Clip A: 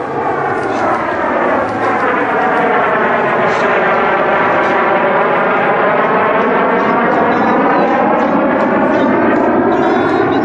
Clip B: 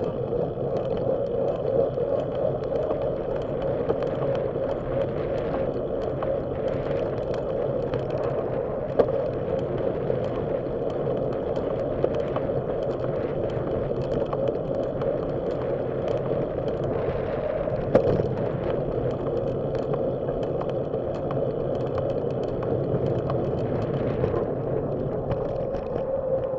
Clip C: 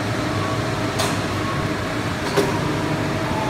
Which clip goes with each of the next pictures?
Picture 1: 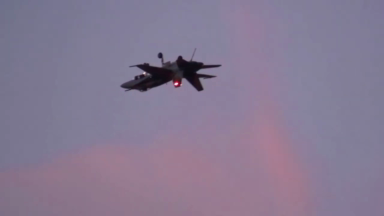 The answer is A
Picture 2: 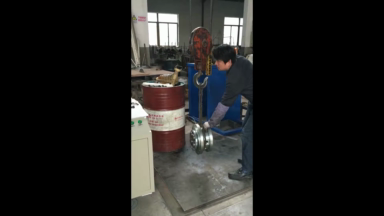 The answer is C